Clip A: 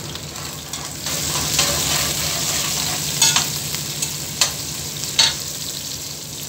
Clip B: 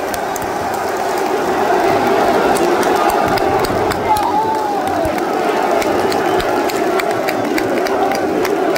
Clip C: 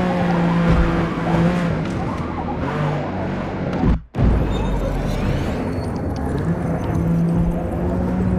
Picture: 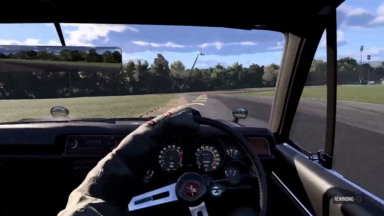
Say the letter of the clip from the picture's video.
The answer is C